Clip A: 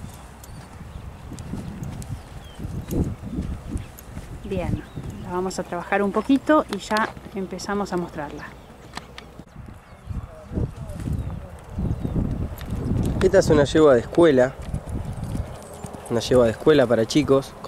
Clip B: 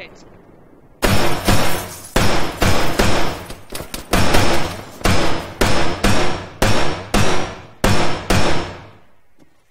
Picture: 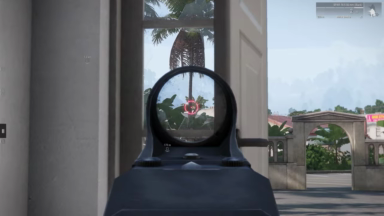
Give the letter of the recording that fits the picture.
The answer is B